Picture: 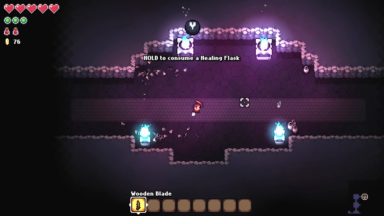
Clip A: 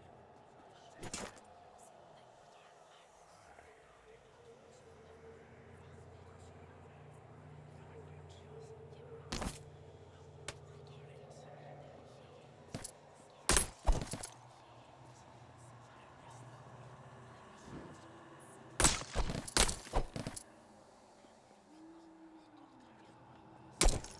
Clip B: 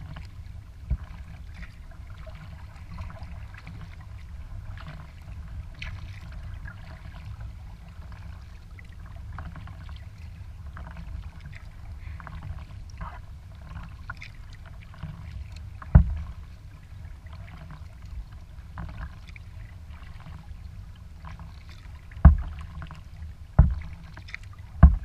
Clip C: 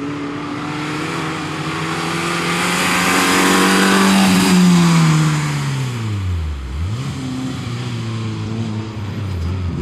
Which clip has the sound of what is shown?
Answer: A